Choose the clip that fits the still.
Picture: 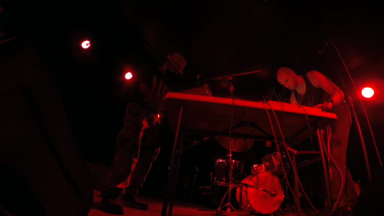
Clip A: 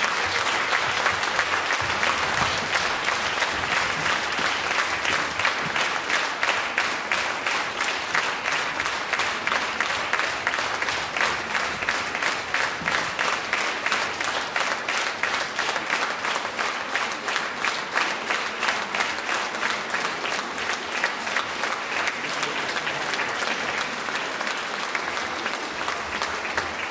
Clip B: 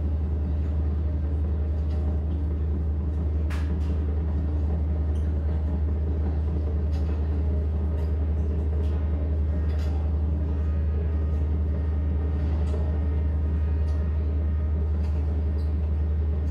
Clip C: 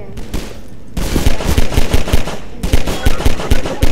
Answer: B